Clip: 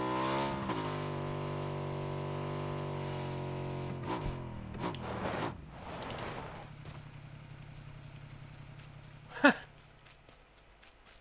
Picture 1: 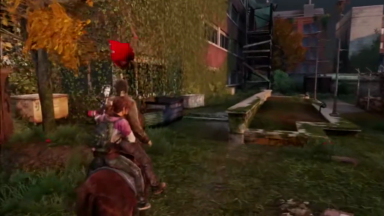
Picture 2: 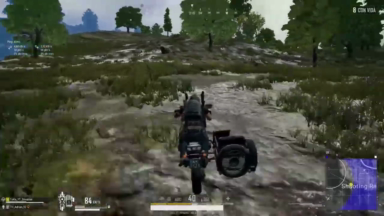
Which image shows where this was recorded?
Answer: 2